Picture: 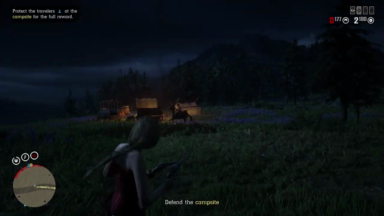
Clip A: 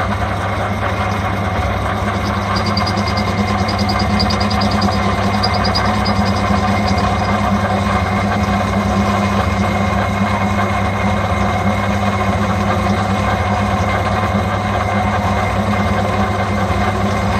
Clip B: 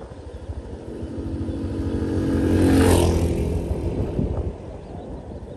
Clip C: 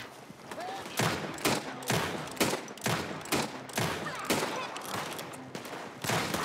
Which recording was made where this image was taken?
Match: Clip C